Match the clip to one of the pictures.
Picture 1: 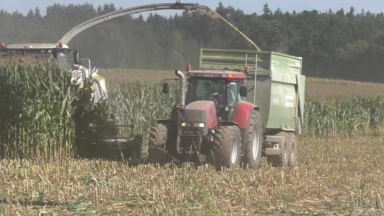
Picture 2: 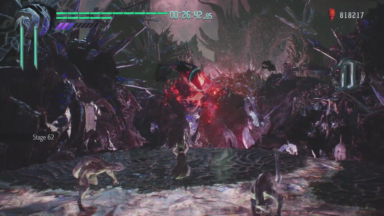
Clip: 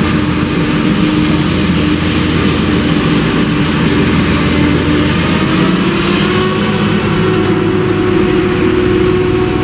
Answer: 1